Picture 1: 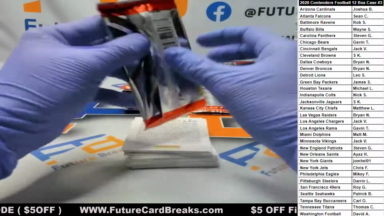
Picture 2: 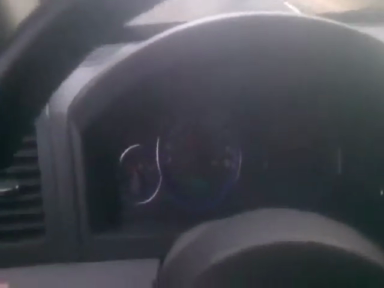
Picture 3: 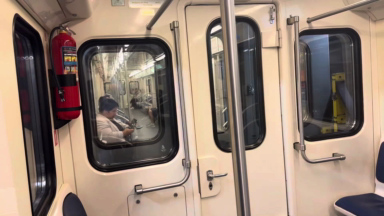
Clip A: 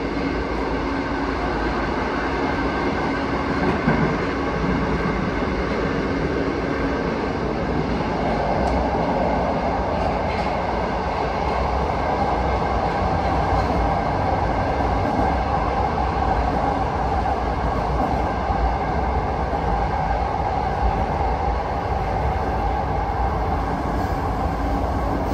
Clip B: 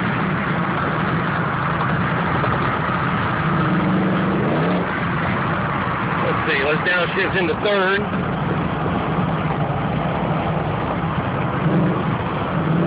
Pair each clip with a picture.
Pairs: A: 3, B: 2